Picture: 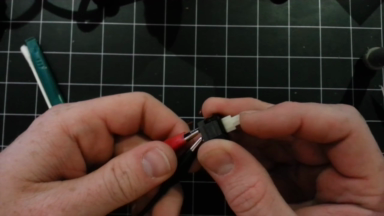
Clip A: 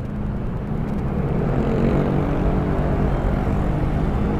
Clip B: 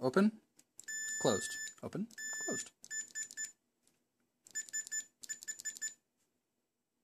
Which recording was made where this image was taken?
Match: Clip B